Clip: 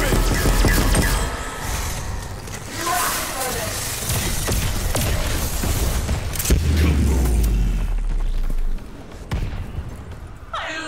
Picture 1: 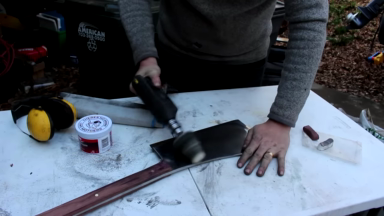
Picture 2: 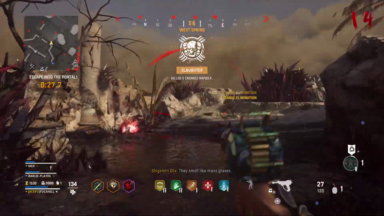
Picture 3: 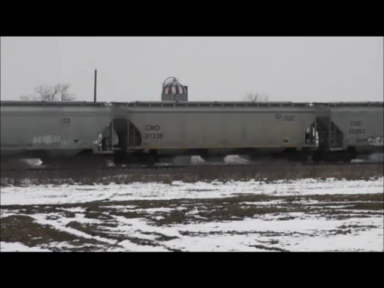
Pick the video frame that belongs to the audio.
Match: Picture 2